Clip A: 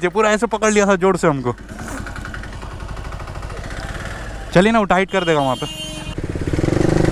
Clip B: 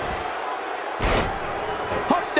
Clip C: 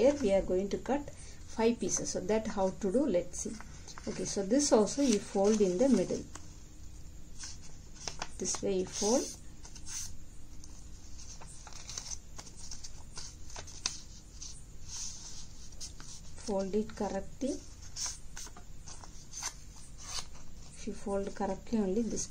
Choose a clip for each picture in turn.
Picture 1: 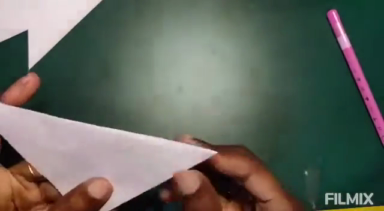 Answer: C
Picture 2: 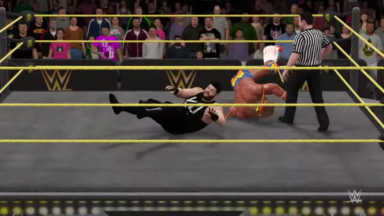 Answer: B